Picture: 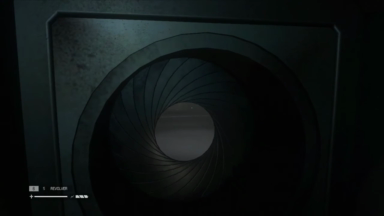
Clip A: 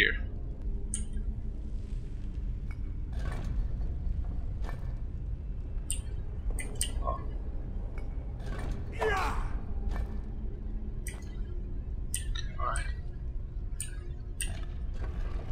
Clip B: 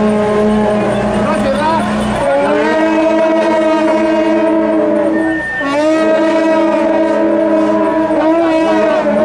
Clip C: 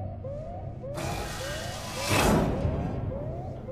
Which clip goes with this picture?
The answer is C